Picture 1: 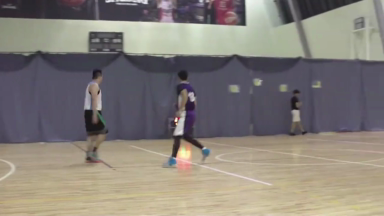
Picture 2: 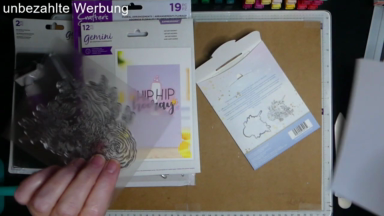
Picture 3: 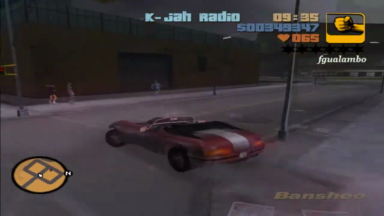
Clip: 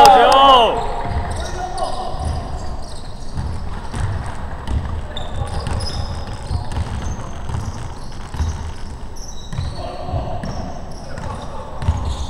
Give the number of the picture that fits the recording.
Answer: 1